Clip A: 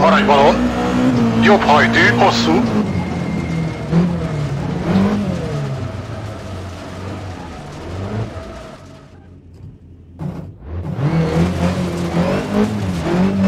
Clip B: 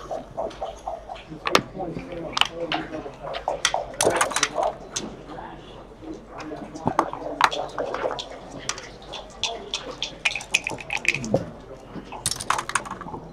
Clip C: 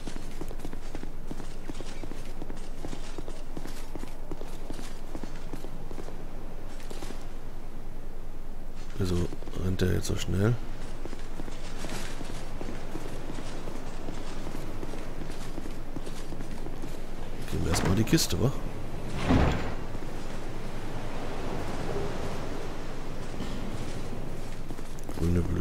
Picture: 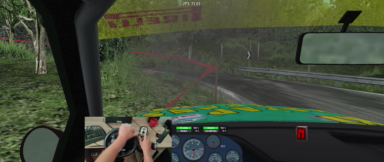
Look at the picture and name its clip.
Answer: A